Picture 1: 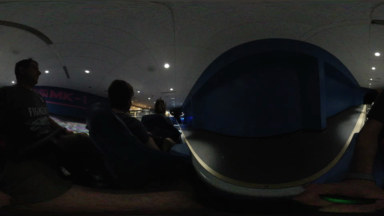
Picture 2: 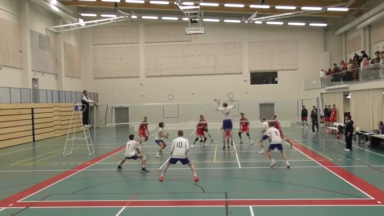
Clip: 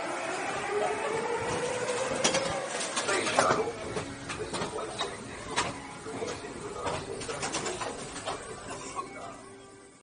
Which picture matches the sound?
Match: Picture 1